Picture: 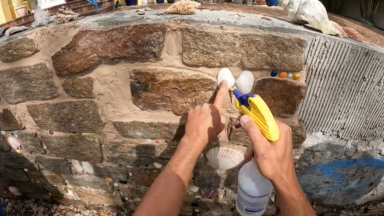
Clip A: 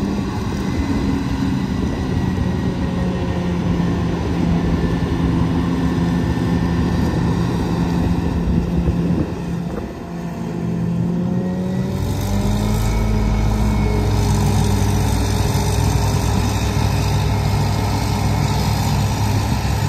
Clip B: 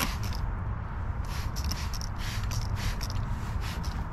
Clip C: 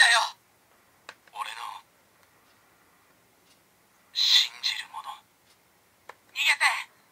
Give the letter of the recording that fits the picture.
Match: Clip B